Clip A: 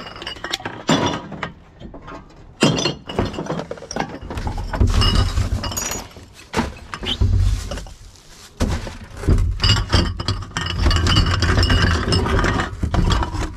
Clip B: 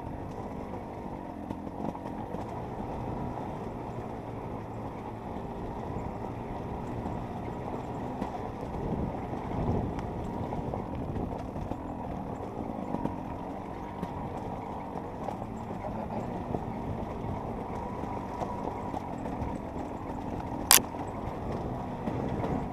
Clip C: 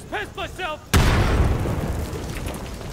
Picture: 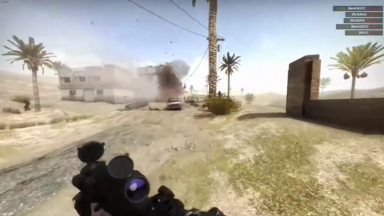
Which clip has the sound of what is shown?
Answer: C